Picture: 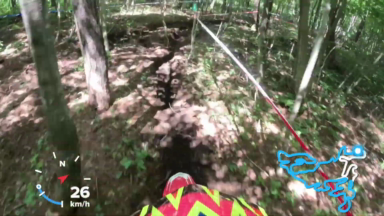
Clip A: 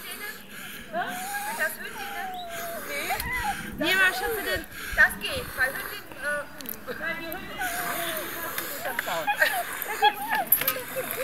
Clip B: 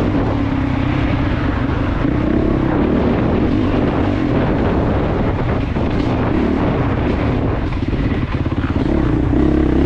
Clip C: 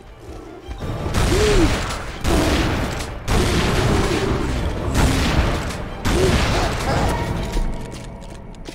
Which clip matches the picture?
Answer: B